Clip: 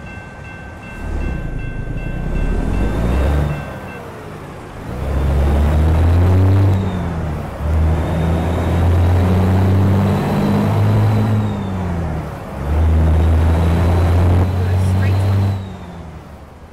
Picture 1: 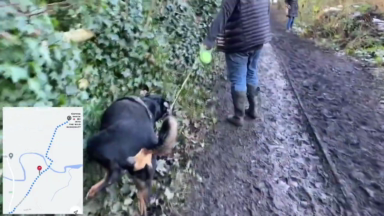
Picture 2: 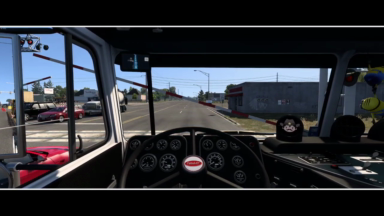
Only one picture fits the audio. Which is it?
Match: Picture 2